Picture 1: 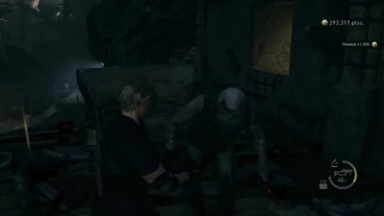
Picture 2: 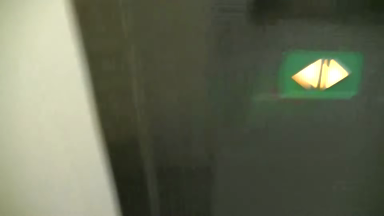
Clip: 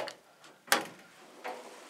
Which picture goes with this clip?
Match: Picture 2